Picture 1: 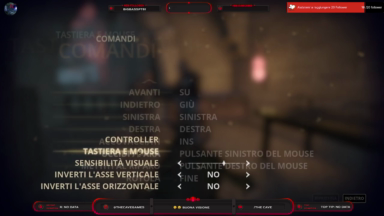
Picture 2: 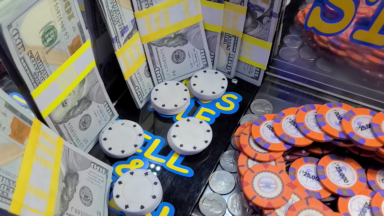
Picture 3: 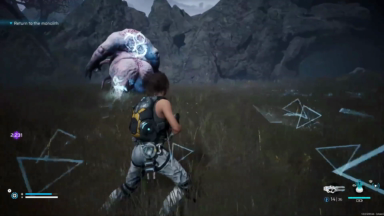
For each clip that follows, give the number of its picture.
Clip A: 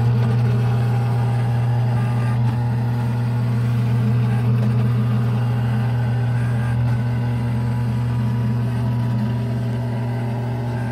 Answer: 2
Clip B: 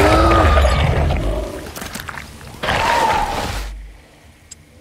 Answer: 3